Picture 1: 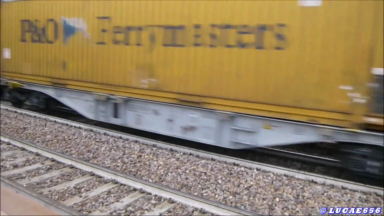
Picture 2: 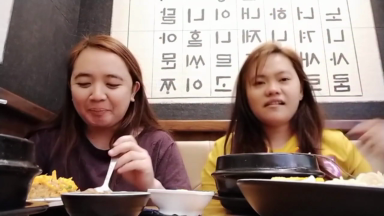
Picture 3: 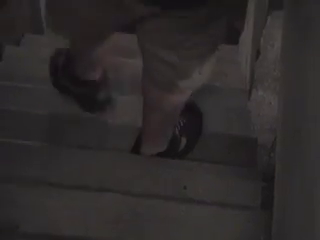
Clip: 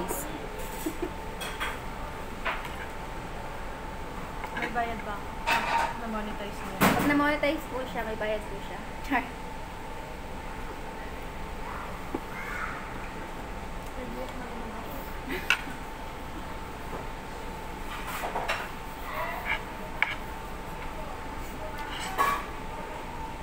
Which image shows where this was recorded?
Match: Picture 2